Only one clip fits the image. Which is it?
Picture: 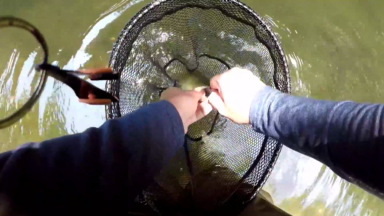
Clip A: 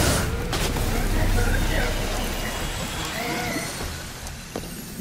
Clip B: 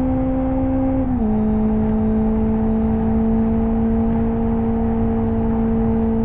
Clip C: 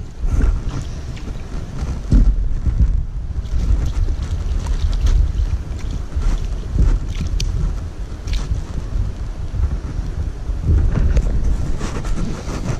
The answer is C